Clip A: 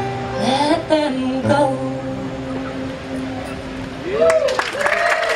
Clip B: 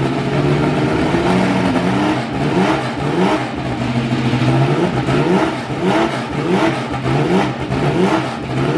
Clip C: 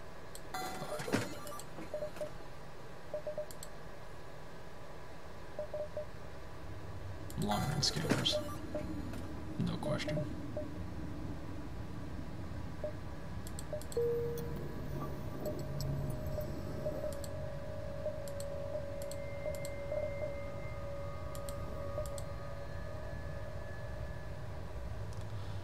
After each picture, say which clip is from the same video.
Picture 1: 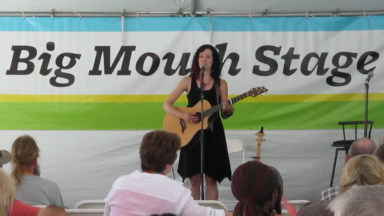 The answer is A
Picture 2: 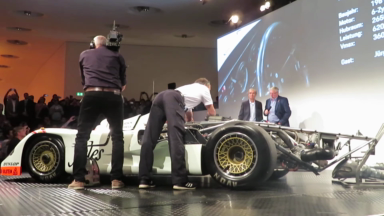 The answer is B